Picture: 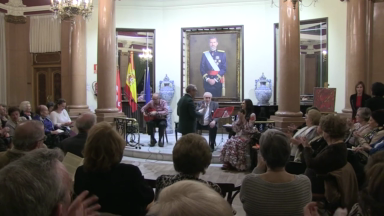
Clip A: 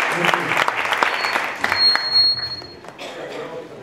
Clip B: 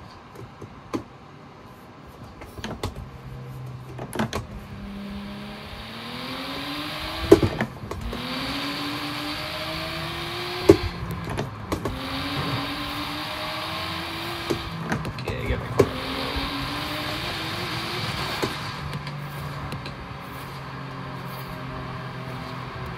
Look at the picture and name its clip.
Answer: A